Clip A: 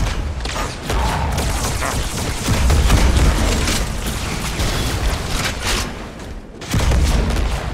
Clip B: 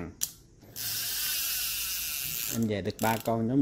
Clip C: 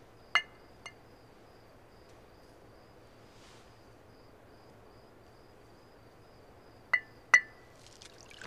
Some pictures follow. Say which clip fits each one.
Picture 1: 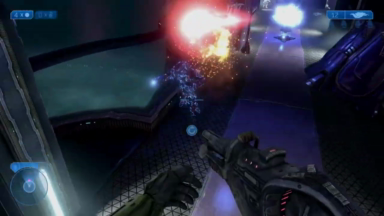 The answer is A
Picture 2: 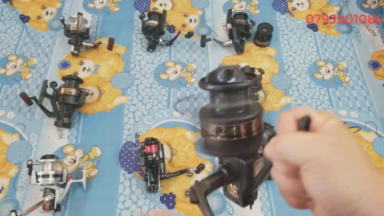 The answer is B